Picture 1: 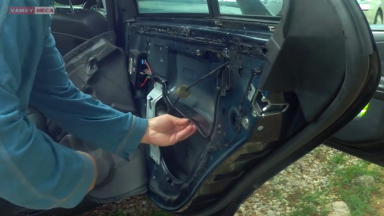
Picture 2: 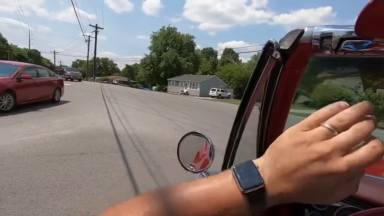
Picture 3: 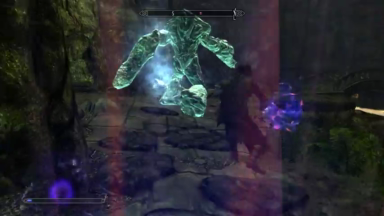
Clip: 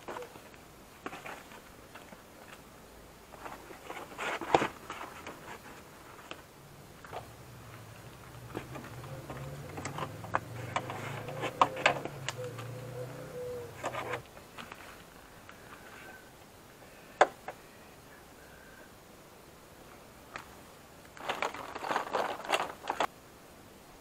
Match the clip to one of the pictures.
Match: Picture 1